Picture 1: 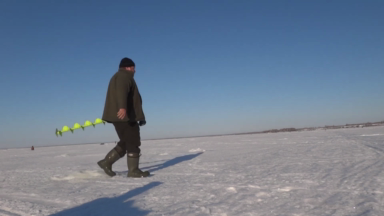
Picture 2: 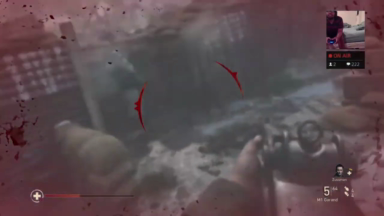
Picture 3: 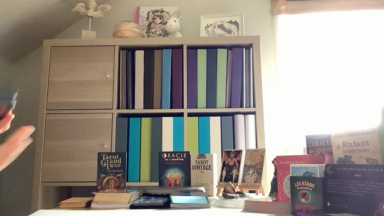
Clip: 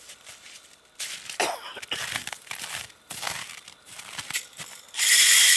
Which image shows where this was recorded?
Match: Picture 1